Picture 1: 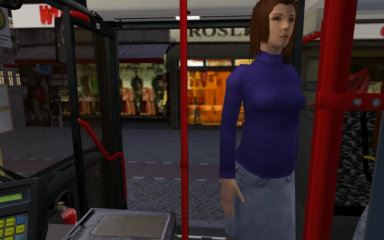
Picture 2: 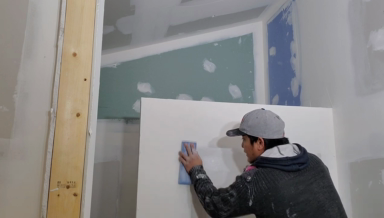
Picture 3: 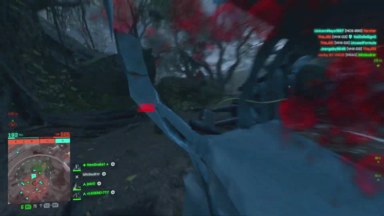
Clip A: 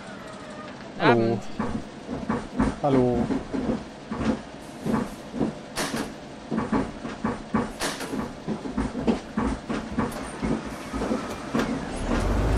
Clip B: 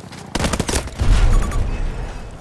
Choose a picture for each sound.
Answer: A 1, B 3